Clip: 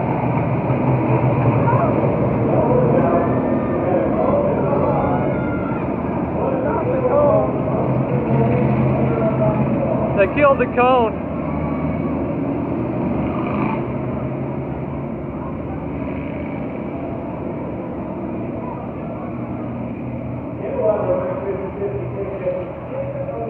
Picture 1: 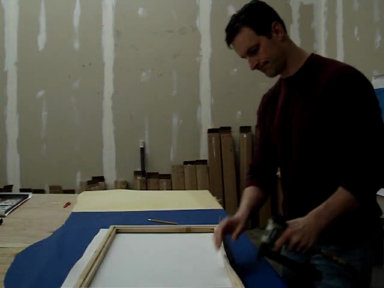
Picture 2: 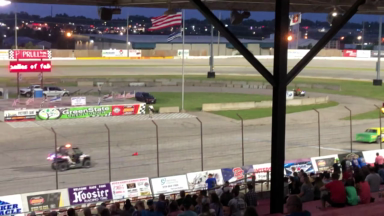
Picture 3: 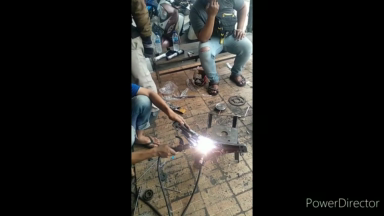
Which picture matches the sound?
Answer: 2